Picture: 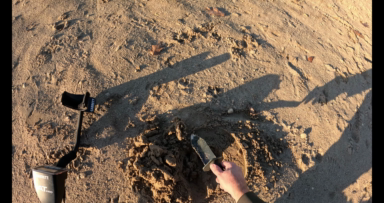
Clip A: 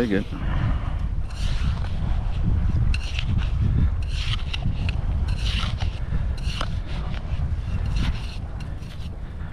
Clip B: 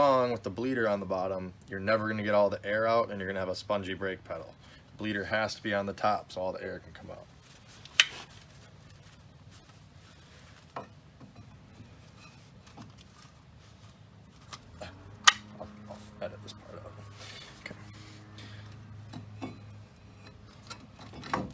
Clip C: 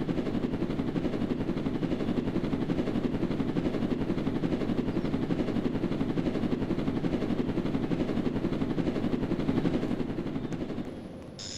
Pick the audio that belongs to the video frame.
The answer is A